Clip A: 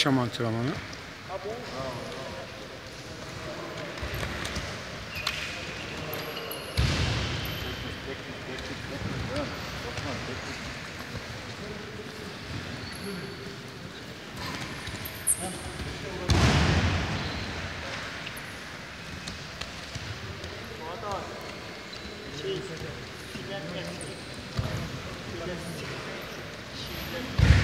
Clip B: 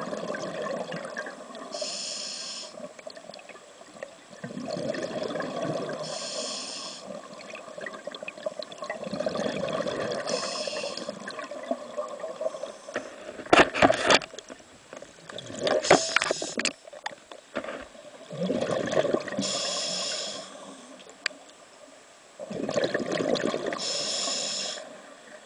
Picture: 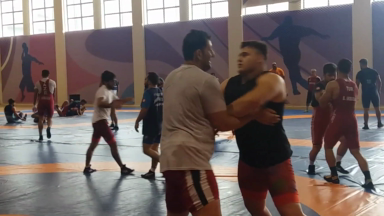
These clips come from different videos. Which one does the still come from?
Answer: A